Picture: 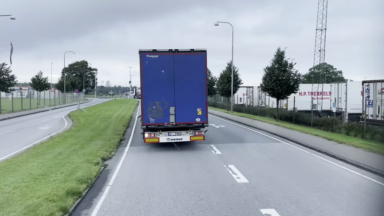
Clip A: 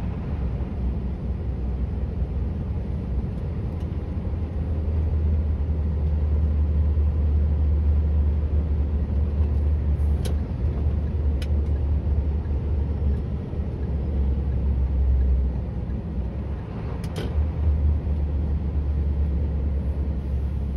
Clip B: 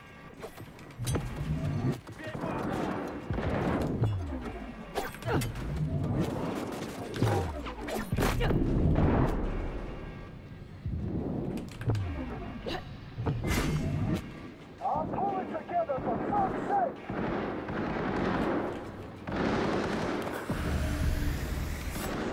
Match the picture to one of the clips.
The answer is A